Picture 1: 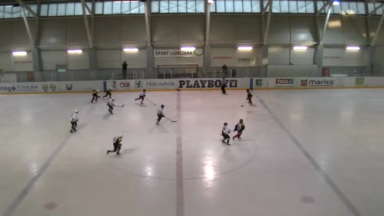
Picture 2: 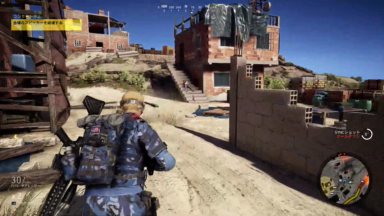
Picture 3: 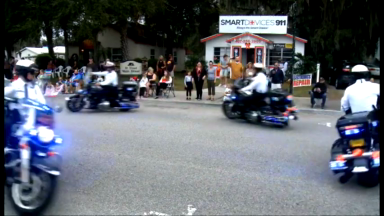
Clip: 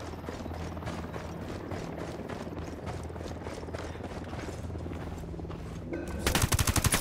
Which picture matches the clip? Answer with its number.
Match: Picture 2